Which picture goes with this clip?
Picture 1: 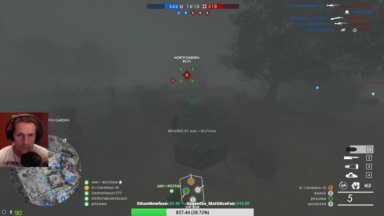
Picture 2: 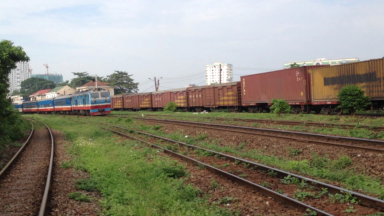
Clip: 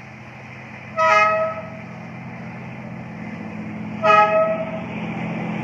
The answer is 2